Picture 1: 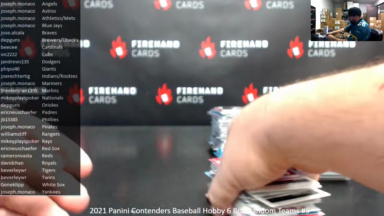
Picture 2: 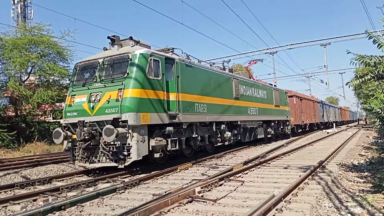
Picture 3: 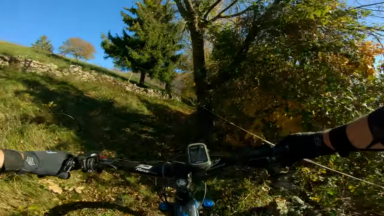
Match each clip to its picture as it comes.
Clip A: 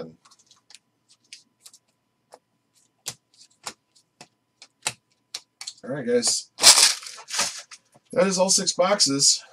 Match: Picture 1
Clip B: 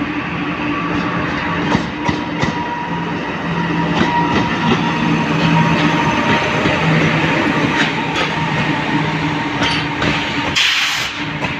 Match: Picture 2